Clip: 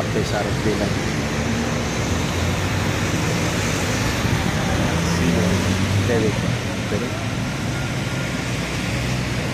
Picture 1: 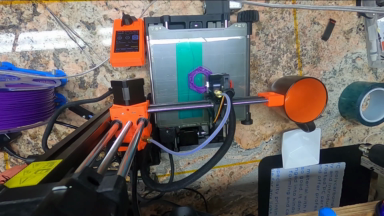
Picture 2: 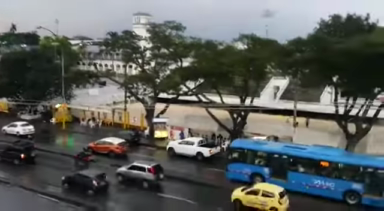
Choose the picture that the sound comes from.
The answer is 2